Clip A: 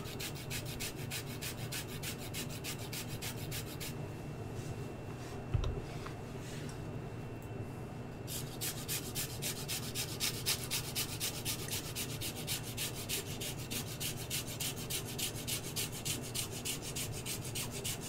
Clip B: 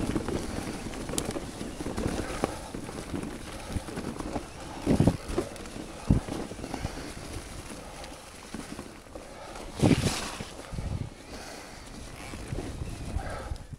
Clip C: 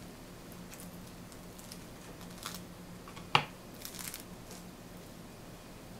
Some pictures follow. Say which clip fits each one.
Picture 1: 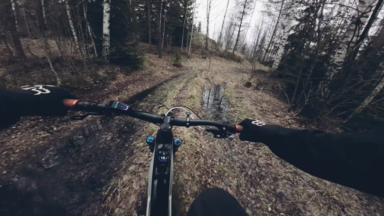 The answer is B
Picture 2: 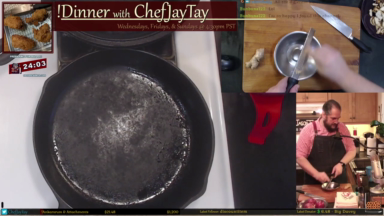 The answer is A